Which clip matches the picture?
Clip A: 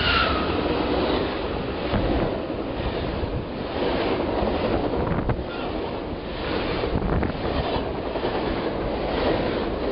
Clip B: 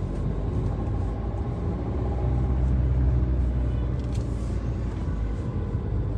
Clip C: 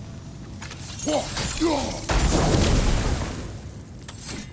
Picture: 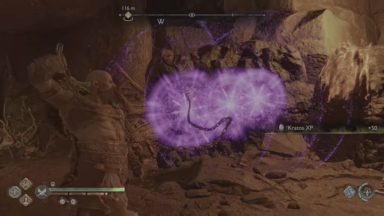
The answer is C